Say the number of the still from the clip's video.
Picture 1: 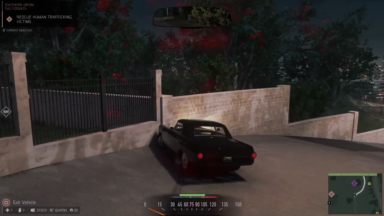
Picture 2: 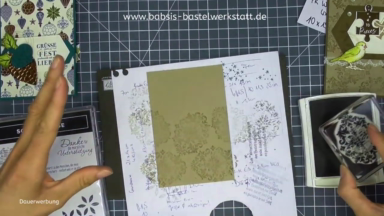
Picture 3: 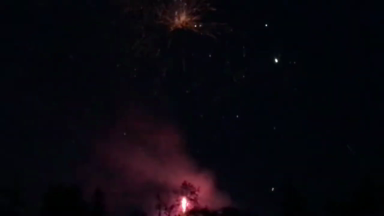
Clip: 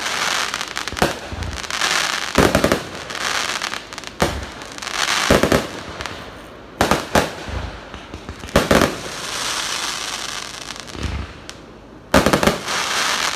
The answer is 3